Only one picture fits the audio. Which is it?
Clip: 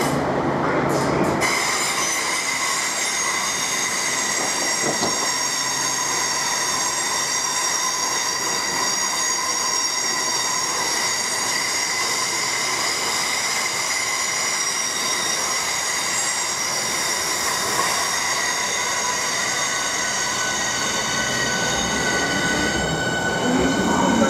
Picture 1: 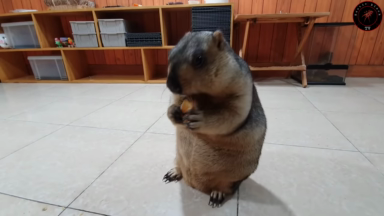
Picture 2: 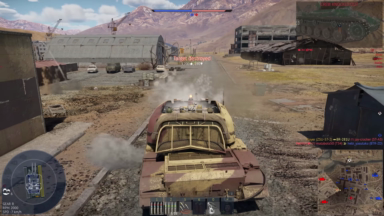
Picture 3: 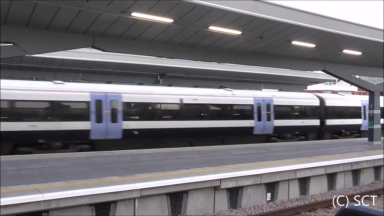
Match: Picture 3